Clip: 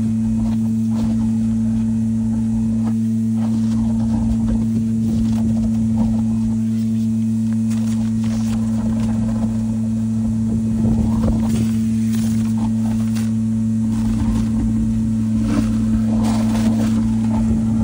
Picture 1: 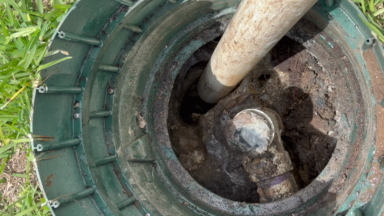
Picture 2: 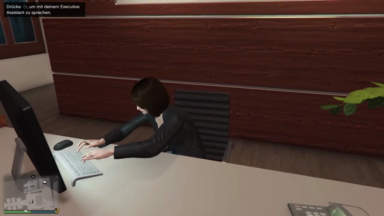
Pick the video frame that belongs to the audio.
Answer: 1